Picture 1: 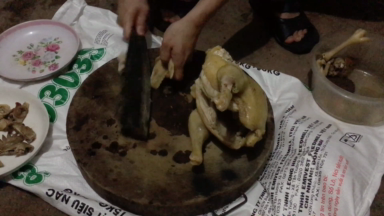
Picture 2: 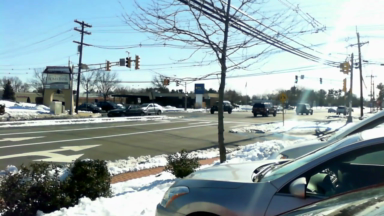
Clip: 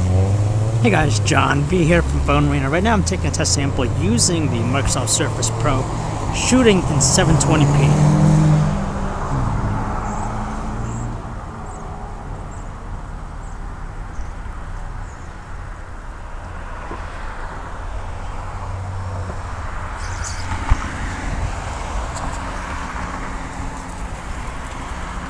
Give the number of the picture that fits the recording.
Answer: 2